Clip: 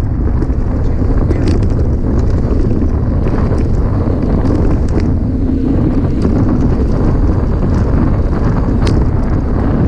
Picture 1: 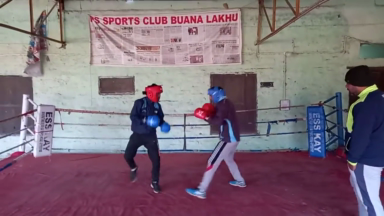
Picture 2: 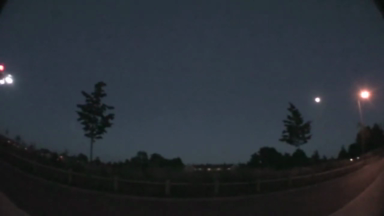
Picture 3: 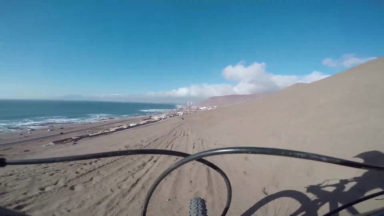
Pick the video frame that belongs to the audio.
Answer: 3